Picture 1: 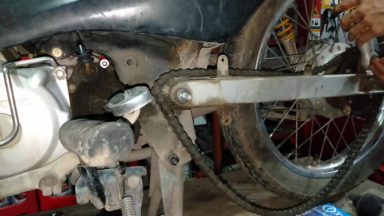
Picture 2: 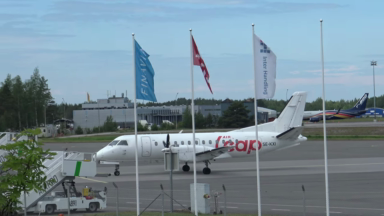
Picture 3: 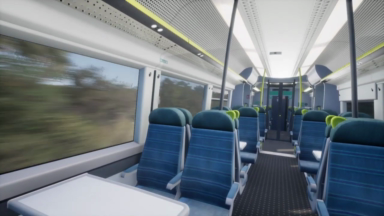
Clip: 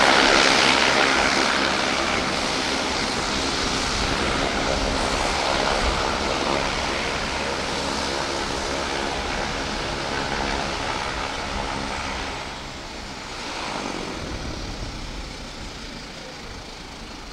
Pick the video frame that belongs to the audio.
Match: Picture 2